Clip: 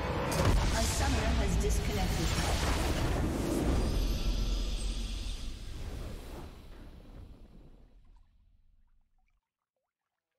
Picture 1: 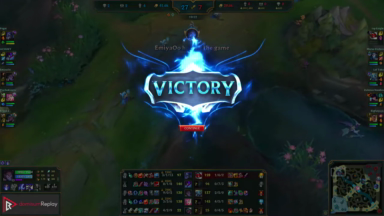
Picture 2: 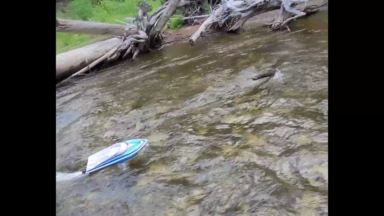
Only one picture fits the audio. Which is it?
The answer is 1